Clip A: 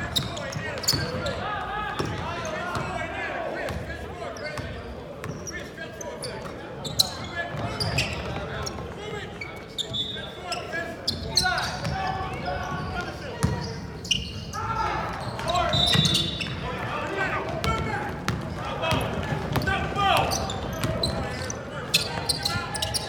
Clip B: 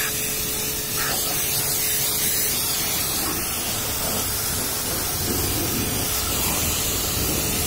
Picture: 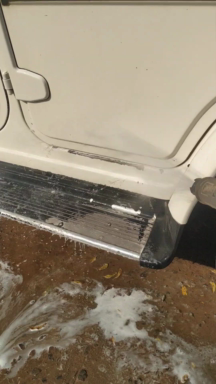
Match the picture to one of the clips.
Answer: B